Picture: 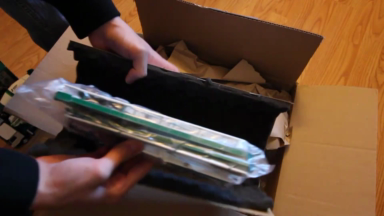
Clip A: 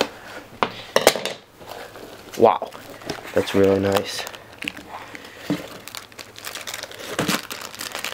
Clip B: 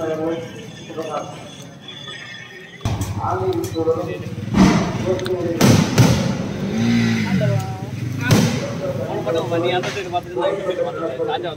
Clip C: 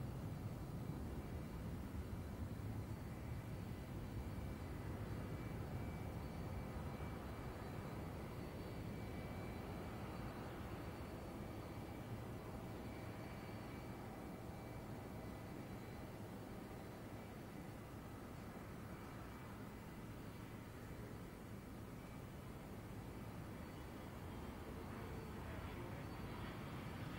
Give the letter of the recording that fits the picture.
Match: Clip A